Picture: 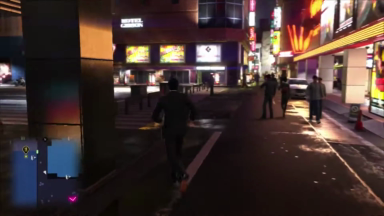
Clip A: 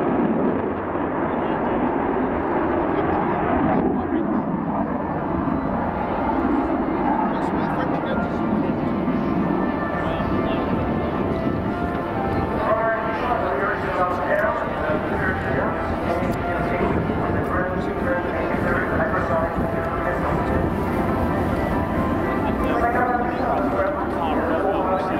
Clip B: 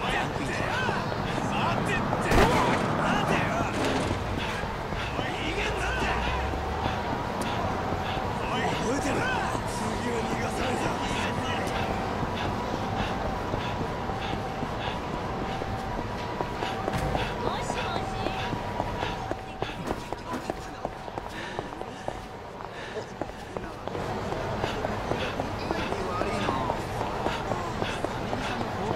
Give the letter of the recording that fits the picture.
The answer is B